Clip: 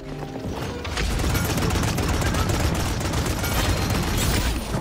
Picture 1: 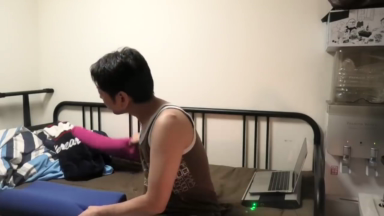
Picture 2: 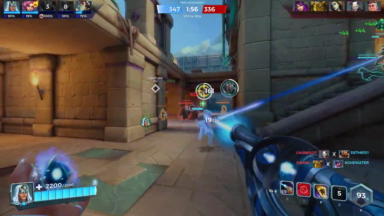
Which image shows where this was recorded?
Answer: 2